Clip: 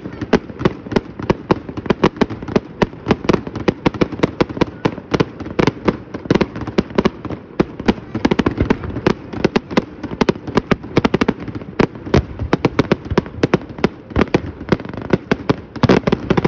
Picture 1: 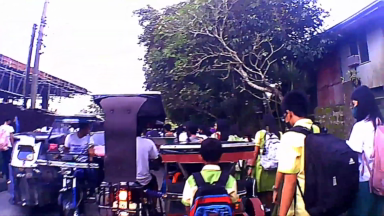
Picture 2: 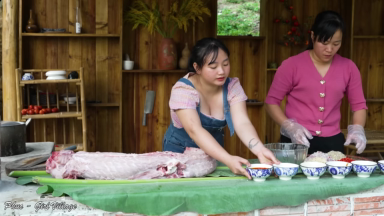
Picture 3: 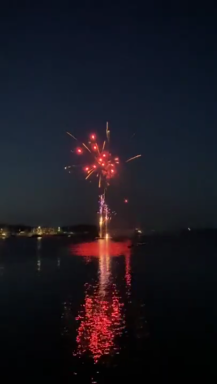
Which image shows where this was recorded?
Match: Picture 3